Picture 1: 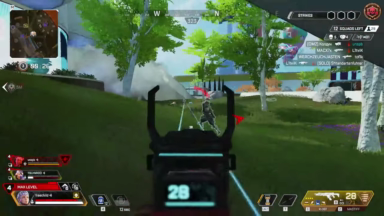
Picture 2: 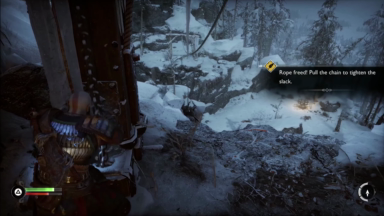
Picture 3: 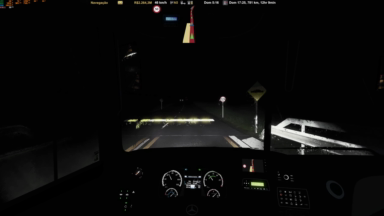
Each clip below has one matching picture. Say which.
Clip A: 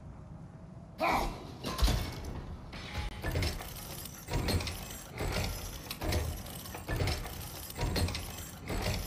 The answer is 2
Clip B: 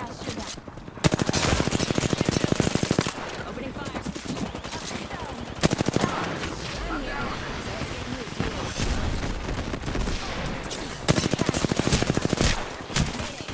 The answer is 1